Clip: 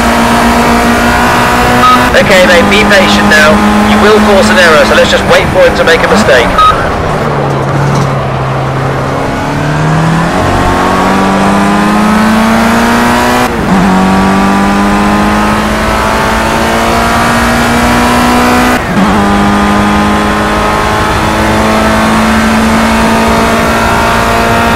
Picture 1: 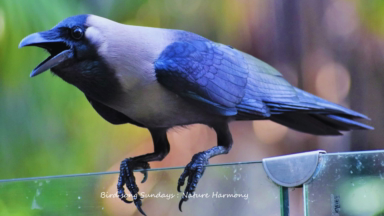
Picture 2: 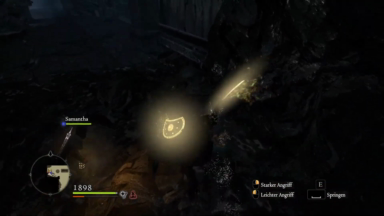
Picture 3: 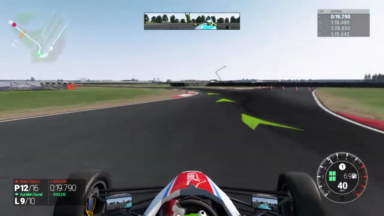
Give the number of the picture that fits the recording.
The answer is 3